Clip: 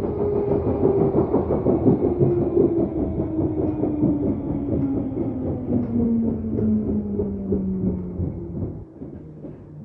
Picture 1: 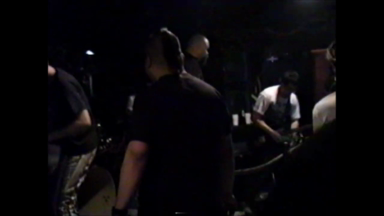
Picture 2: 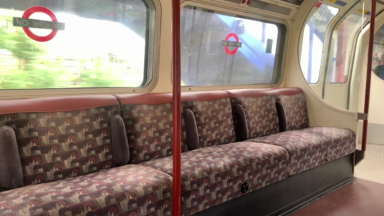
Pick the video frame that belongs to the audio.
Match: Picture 2